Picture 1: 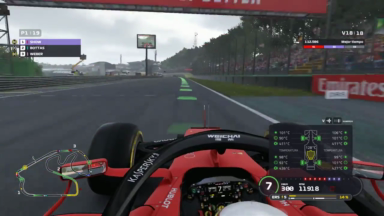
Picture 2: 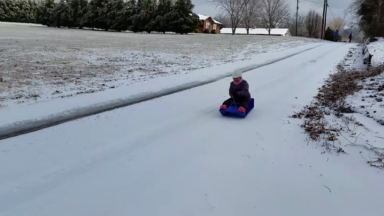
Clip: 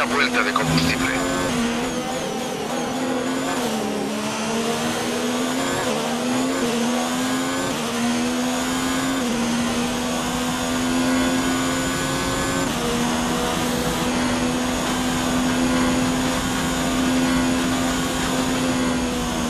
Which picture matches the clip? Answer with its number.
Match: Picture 1